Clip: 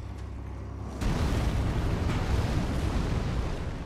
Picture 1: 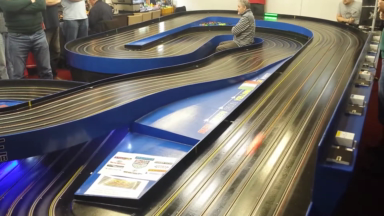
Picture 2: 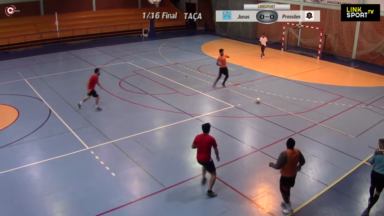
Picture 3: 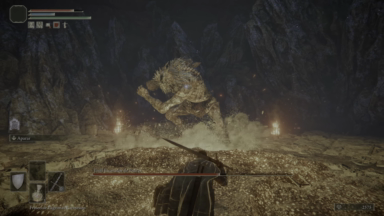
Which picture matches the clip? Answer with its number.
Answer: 3